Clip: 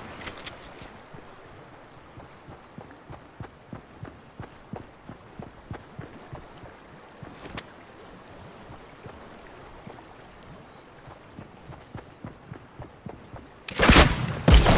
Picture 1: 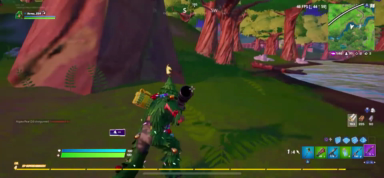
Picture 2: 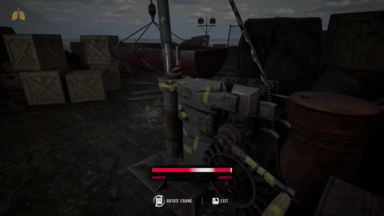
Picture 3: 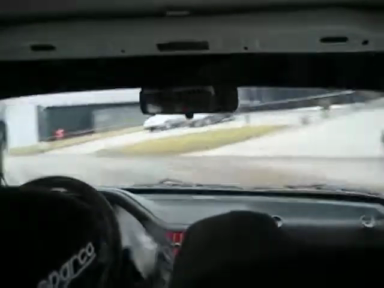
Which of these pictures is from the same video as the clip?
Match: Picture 1